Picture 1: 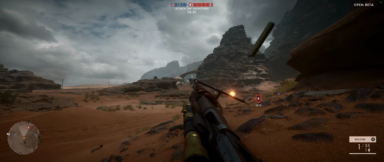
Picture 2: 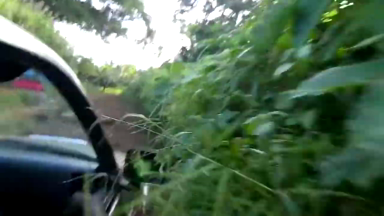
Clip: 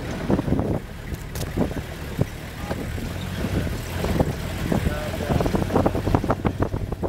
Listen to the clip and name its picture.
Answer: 2